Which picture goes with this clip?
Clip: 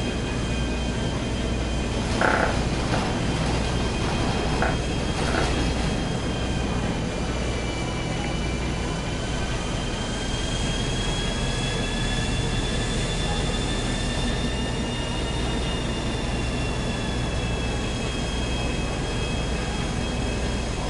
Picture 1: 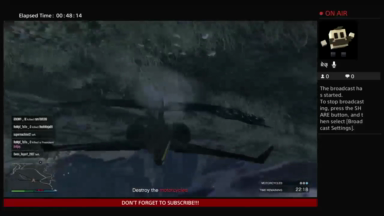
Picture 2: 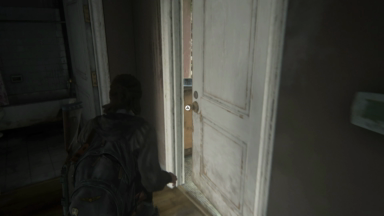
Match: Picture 1